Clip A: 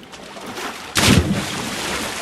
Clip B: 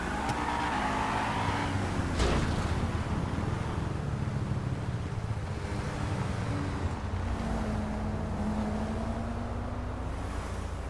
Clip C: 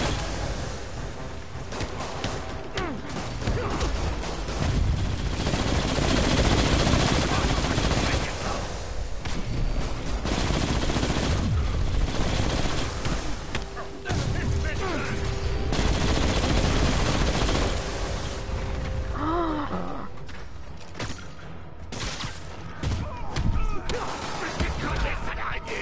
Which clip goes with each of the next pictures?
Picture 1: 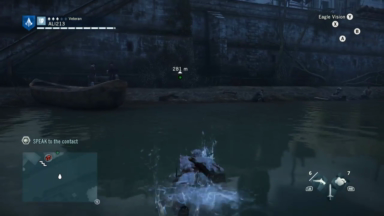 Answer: A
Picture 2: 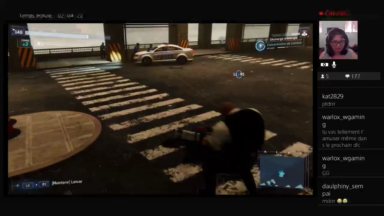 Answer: C